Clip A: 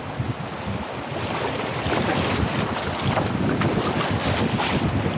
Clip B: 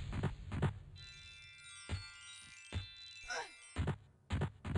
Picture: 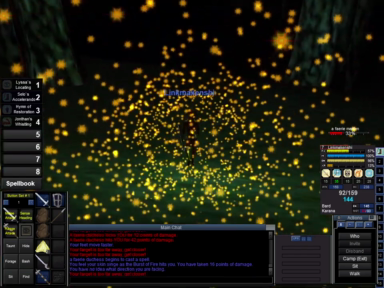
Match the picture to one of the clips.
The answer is B